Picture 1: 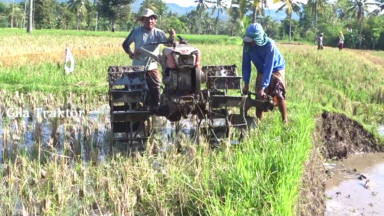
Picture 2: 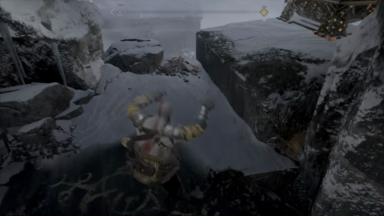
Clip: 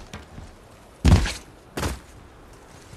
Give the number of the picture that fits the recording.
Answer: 2